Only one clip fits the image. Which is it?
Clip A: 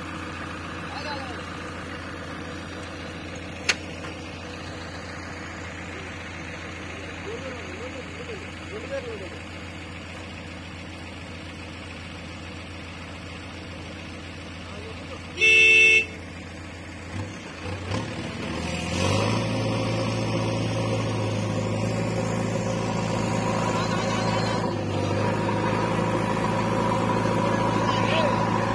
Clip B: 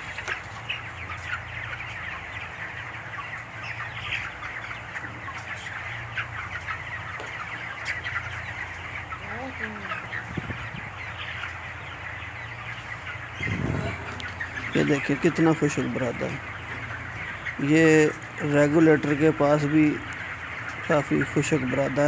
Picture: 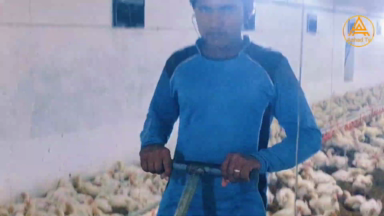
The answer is B